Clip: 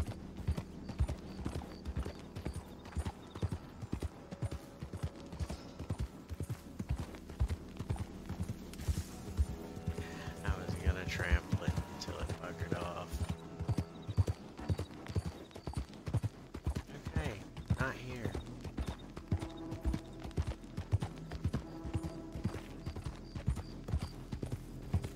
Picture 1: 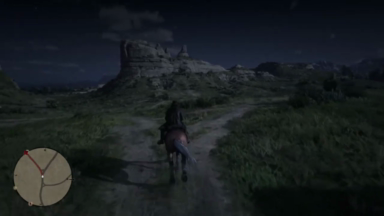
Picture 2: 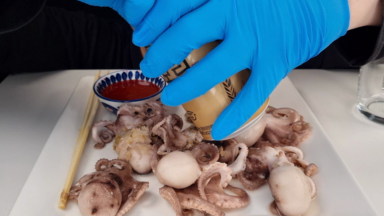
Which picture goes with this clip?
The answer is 1